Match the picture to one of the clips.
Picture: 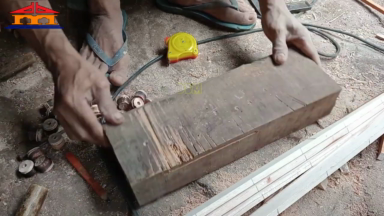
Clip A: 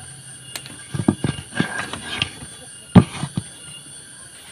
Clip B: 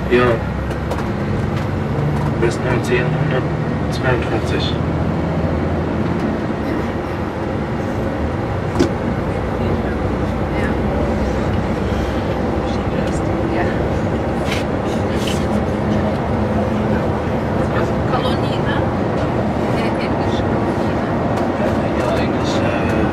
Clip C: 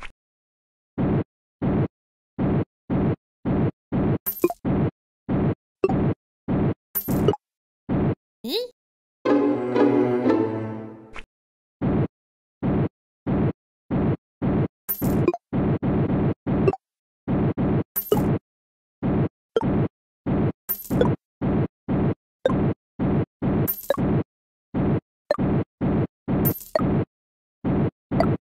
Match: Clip A